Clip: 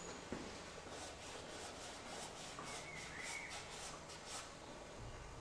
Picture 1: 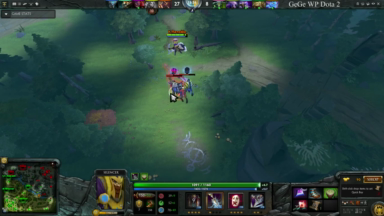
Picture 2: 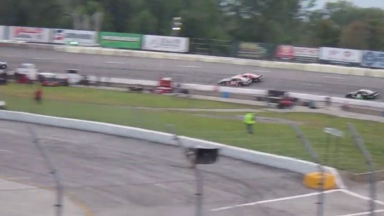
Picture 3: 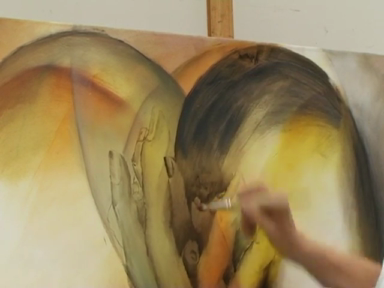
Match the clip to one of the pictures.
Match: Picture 3